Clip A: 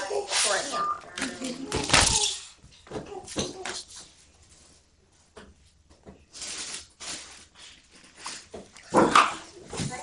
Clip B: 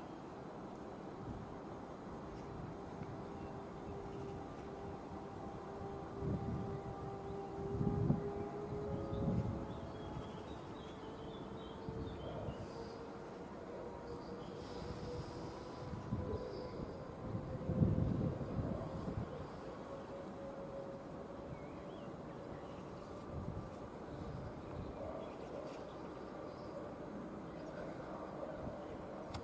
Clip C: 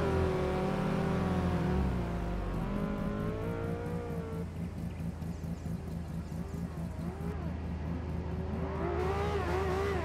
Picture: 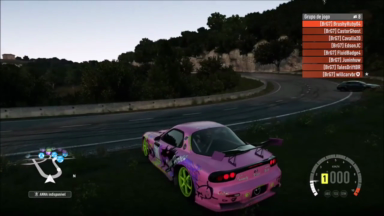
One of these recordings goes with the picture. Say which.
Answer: C